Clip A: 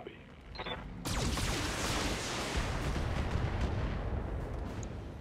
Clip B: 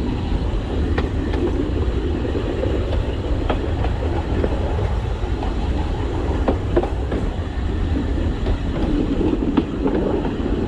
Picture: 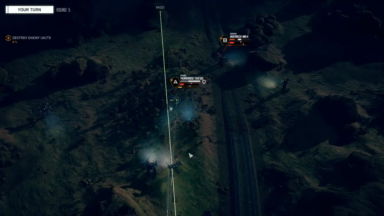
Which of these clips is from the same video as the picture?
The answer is A